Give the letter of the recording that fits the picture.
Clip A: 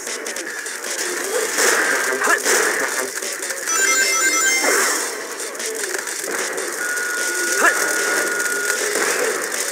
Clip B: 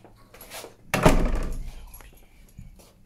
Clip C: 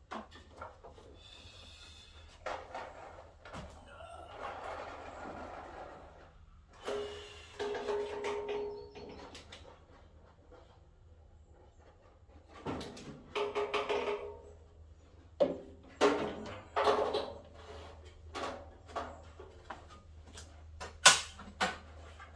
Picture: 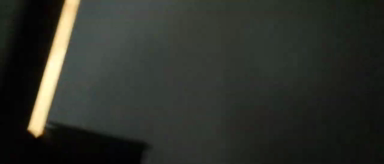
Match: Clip B